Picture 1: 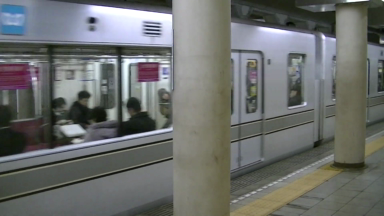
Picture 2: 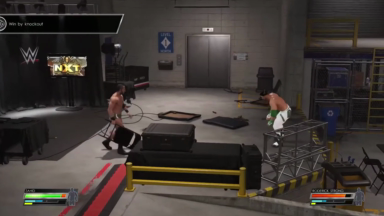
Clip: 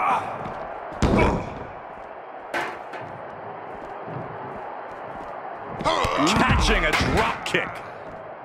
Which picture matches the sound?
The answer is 2